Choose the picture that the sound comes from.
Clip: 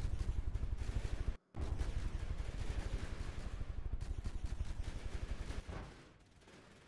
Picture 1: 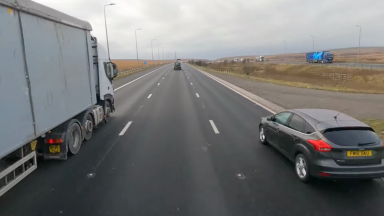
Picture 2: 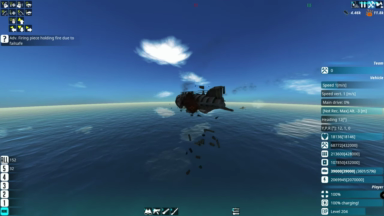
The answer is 2